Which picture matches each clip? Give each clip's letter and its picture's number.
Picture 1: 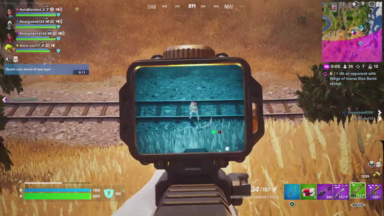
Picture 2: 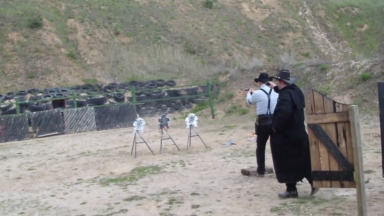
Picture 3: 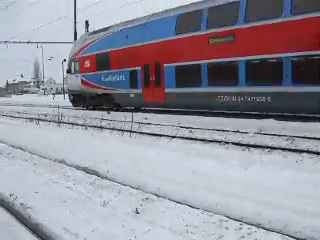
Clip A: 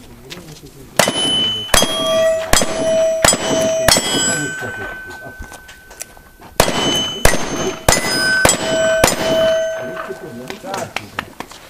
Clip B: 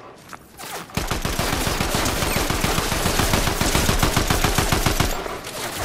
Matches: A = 2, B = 1